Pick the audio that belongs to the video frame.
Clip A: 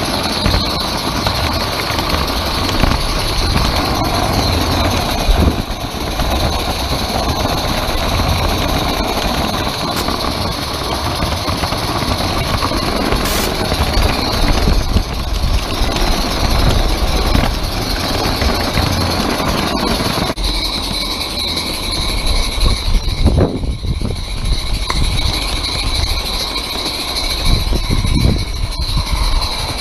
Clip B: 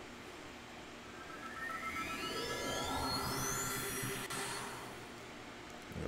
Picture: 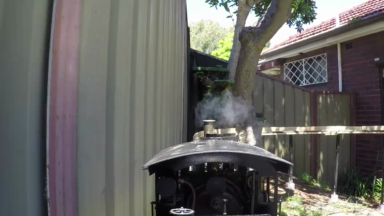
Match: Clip A